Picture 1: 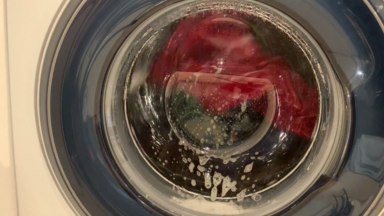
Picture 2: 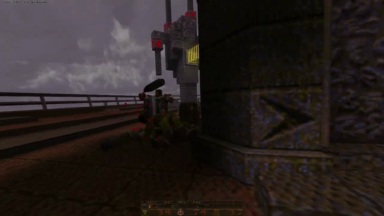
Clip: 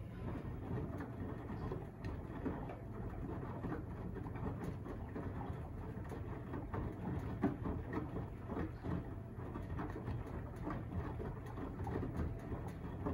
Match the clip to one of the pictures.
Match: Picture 1